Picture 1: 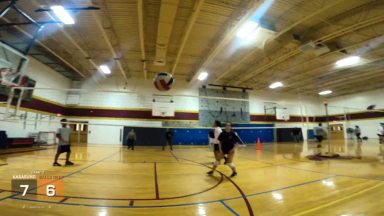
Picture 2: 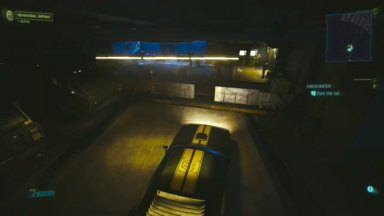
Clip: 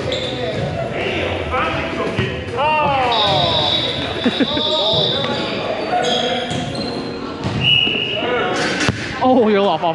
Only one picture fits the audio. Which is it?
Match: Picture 1